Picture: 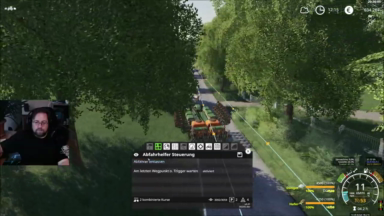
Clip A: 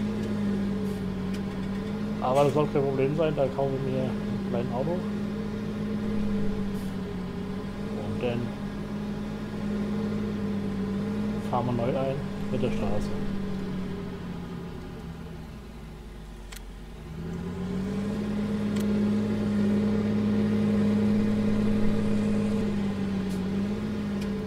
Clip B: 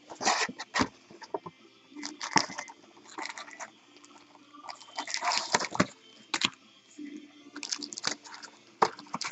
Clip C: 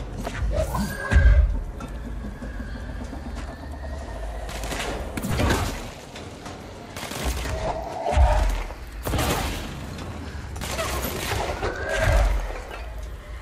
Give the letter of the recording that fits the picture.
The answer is A